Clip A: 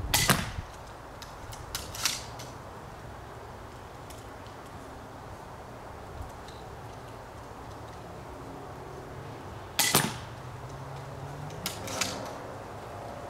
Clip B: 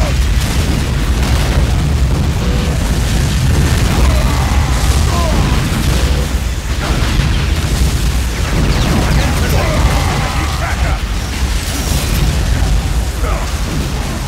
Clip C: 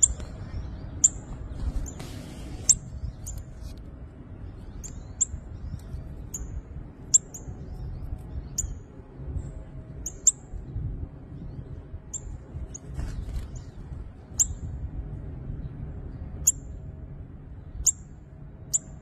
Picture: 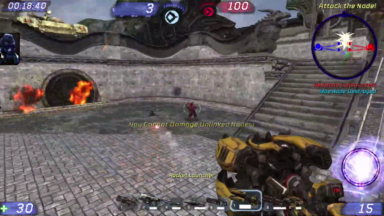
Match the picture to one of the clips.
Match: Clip B